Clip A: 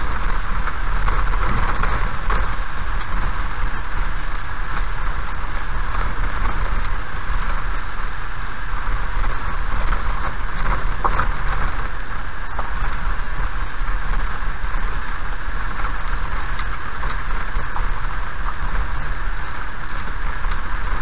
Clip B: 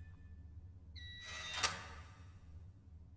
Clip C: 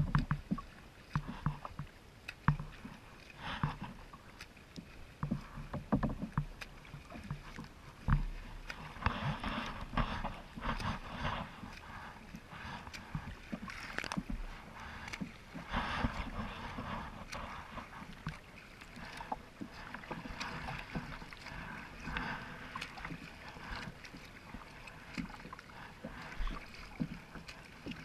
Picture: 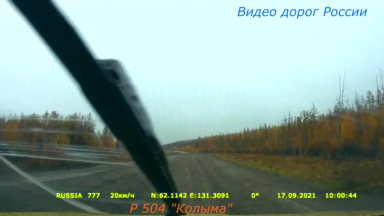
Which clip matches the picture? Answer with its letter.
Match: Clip A